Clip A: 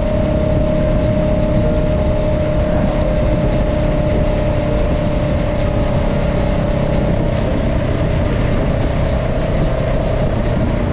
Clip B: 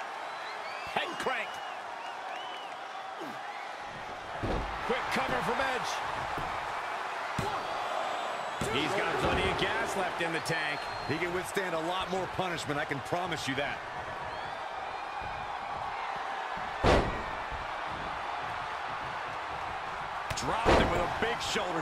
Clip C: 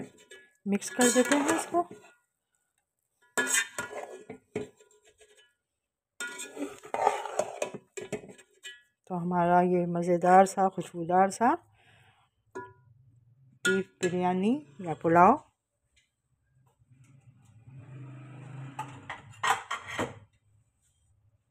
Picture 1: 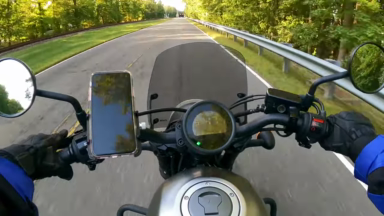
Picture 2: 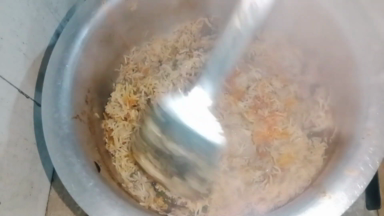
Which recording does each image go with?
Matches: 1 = A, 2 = C